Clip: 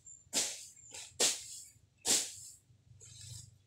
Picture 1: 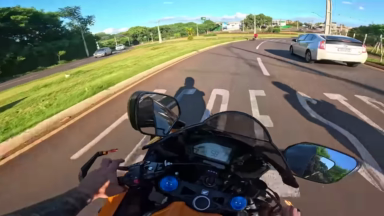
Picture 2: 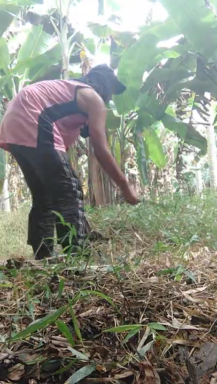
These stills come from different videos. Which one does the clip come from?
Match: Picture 2